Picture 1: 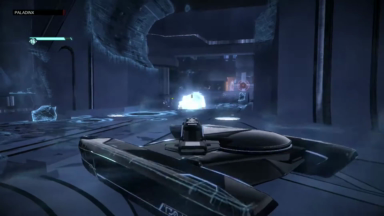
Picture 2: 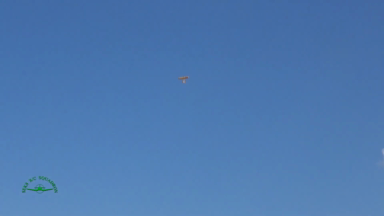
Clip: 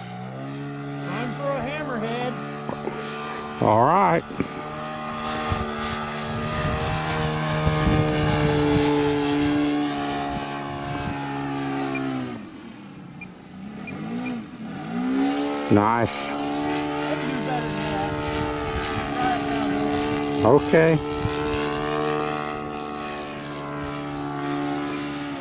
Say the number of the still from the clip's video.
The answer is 2